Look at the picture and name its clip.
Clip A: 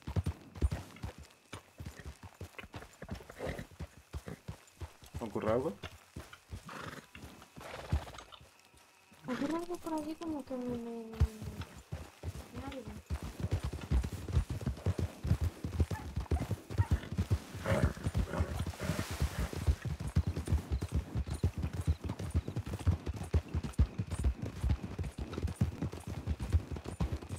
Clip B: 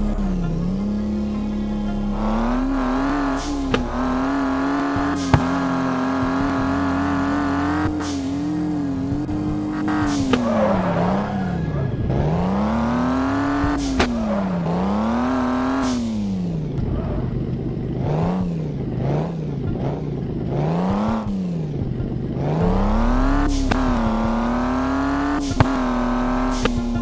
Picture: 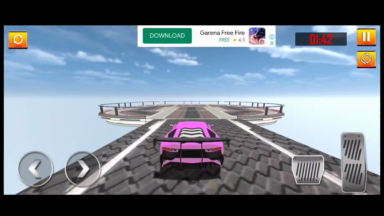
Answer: B